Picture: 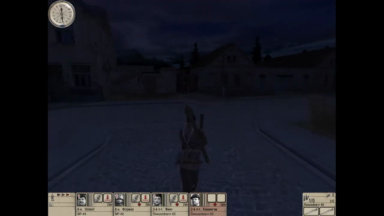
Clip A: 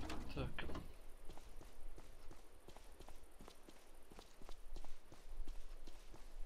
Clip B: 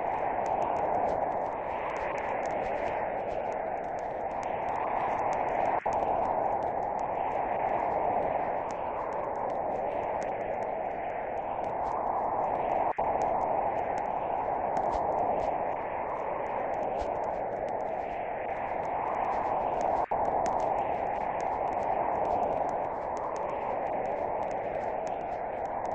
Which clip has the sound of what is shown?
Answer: A